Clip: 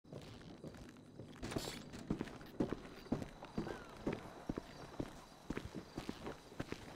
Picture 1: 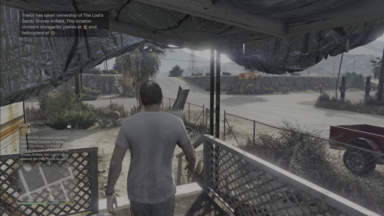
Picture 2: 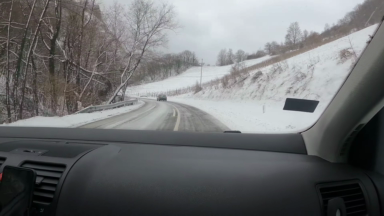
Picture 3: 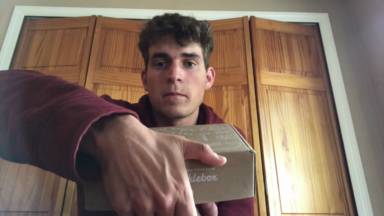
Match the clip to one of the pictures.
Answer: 1